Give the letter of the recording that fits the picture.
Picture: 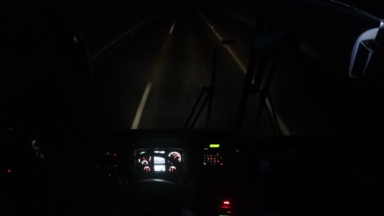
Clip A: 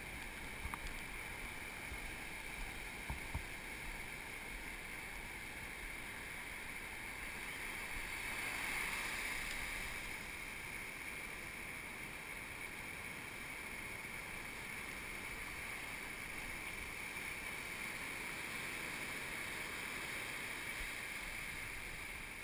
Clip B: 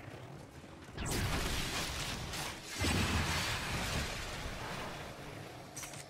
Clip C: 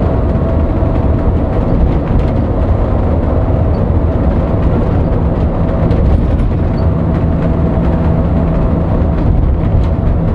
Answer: C